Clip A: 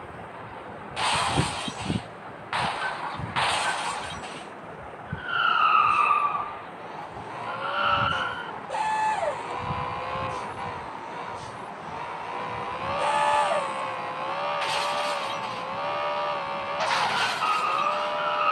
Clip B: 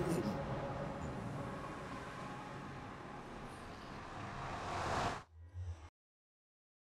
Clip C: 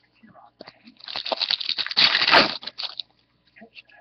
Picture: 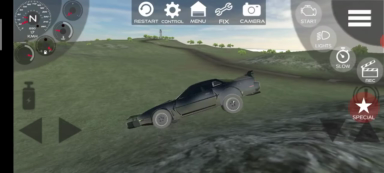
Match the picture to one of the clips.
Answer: A